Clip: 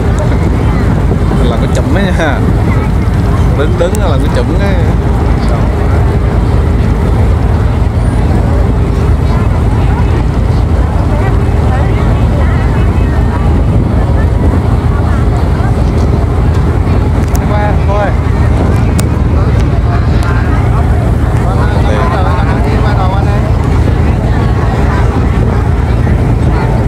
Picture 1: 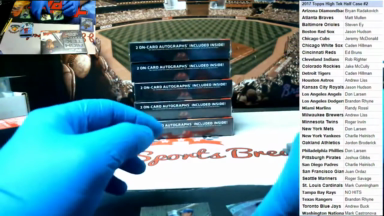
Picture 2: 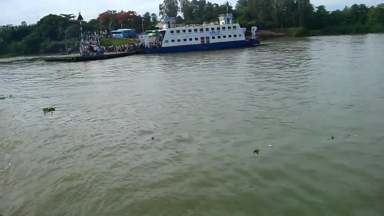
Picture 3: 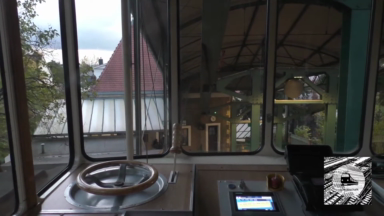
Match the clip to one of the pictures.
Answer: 2